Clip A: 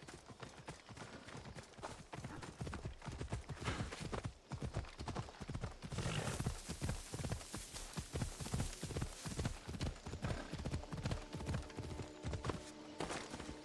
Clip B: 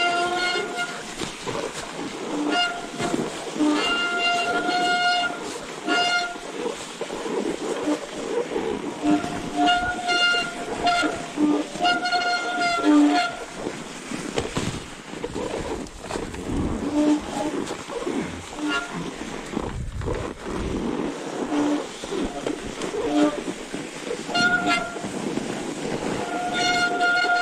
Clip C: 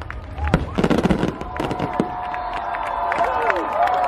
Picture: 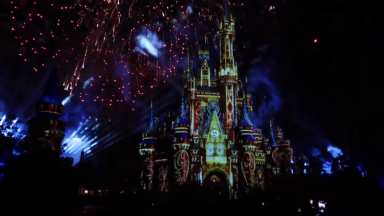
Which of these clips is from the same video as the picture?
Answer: C